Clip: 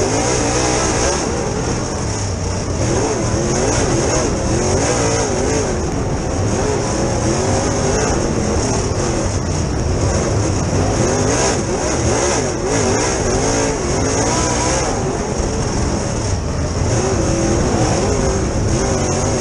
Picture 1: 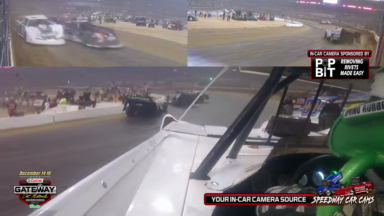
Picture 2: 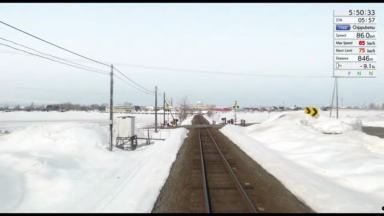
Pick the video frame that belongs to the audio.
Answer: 1